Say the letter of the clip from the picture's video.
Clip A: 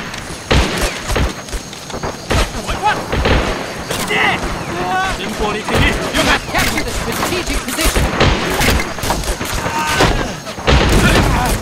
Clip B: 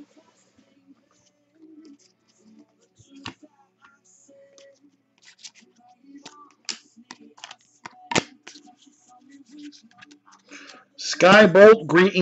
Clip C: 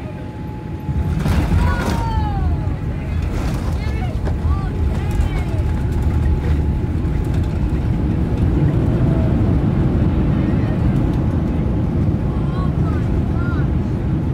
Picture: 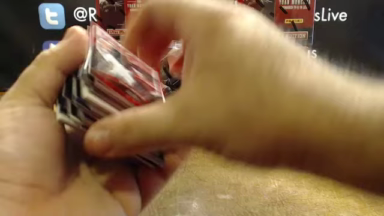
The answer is B